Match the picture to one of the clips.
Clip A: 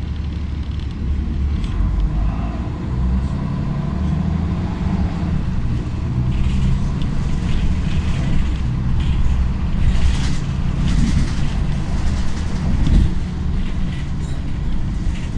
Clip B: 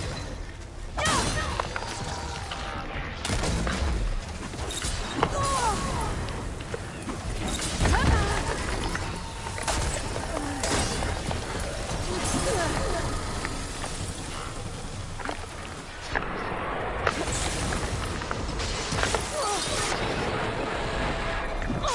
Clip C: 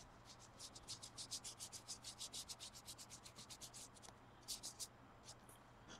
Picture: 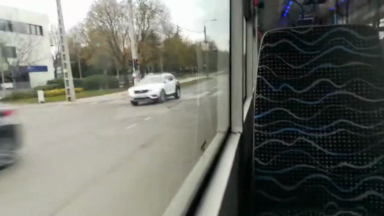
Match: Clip A